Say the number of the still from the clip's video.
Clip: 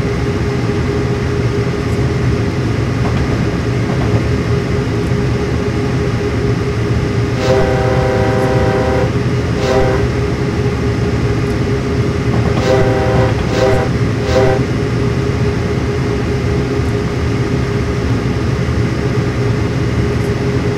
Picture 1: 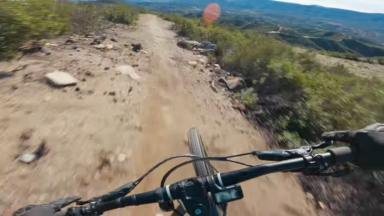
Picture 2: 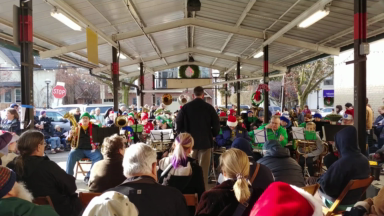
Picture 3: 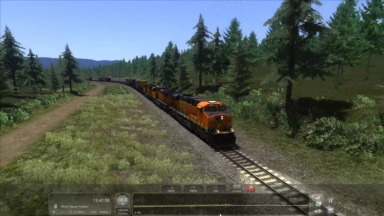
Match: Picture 3